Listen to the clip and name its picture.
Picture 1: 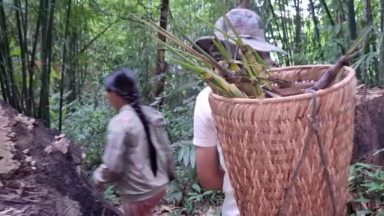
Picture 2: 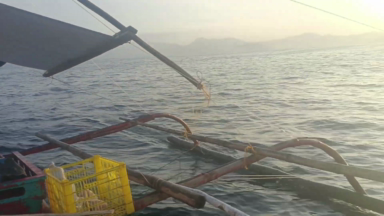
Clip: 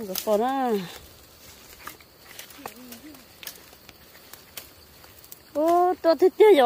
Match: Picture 1